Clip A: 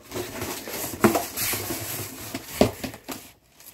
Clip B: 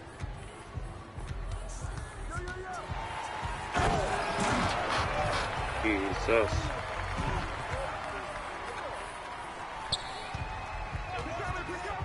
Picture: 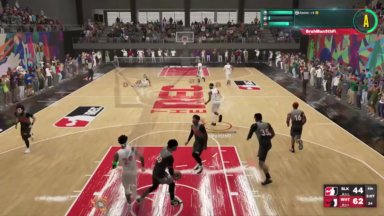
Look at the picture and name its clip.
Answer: B